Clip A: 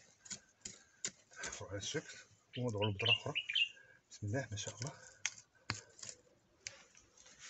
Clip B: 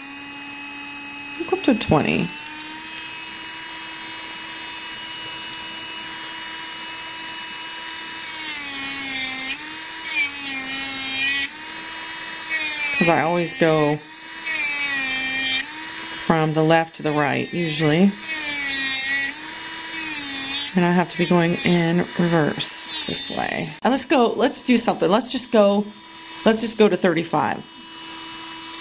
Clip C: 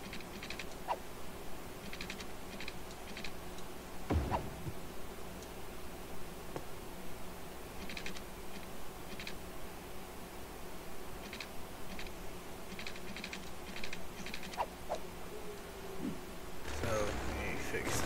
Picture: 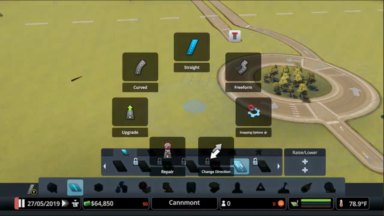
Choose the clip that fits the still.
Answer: C